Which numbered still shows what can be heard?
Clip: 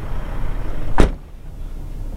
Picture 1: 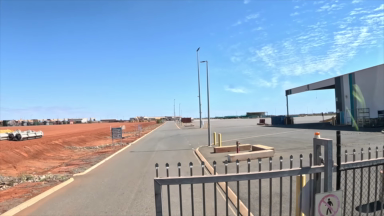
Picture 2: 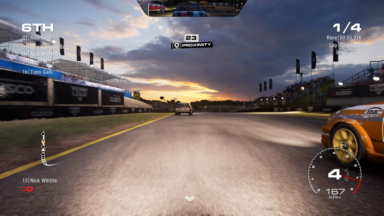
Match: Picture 1